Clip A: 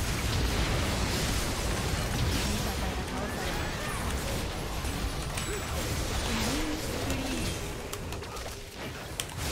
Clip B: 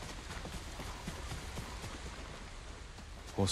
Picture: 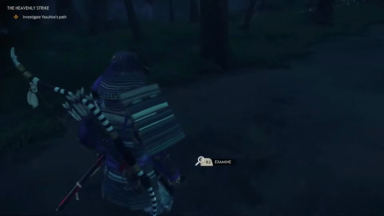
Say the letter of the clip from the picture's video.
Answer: B